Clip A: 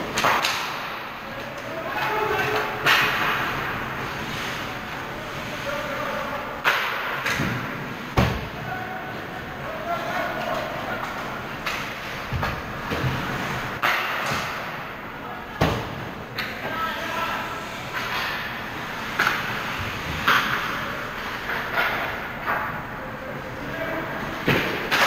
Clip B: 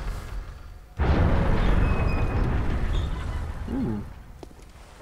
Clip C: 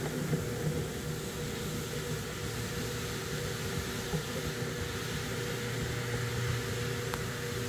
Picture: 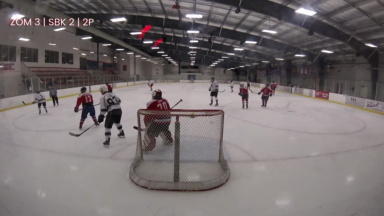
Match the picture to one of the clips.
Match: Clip A